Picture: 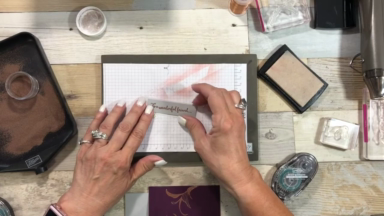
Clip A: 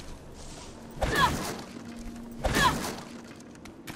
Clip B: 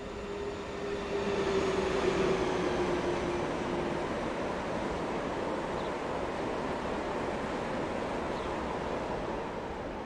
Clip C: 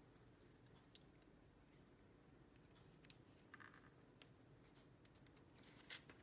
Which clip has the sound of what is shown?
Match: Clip C